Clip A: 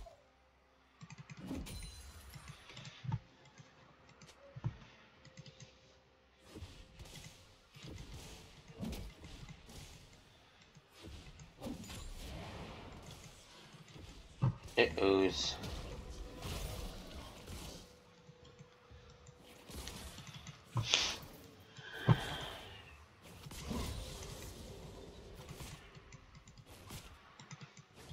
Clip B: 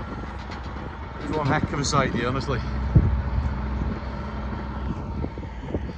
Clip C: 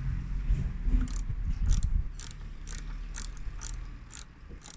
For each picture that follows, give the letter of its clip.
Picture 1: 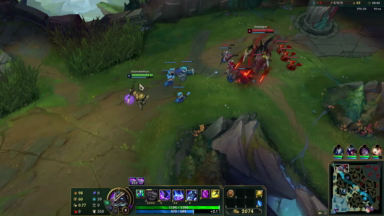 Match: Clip A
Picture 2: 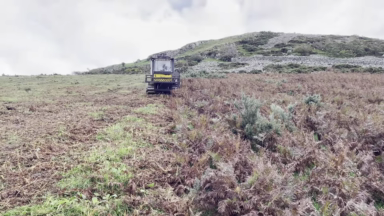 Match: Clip B